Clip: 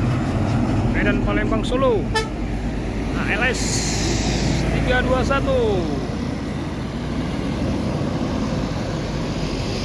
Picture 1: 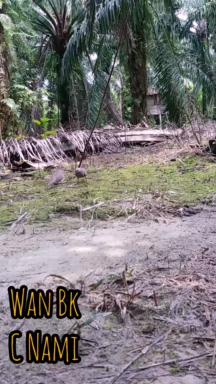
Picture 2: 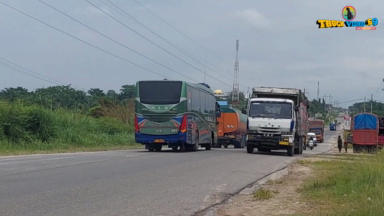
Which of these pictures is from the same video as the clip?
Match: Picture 2